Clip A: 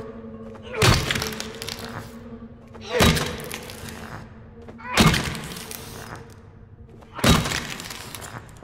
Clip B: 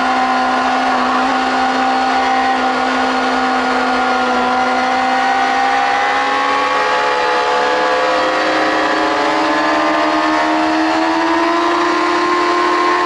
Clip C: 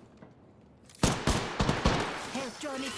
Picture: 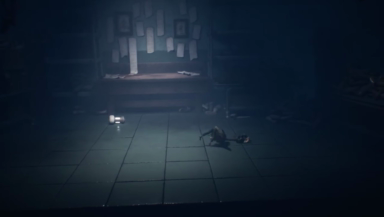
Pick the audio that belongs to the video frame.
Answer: A